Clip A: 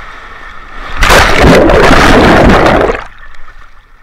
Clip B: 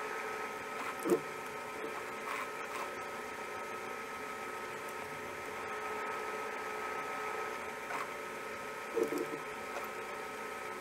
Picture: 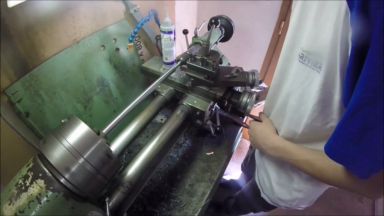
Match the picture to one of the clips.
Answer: B